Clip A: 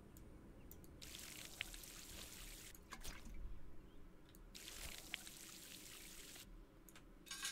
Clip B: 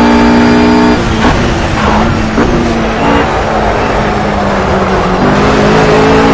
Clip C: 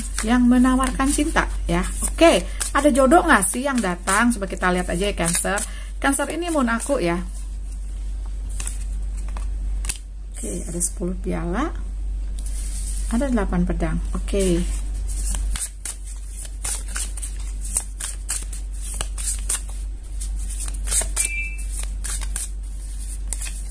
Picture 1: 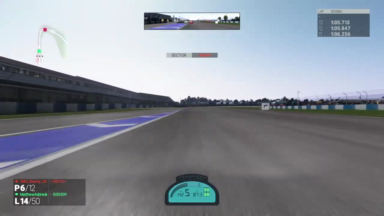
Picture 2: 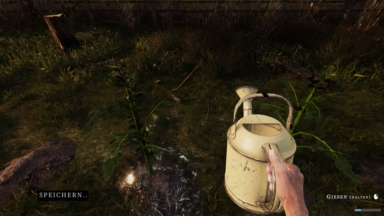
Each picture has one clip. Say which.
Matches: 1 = B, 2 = A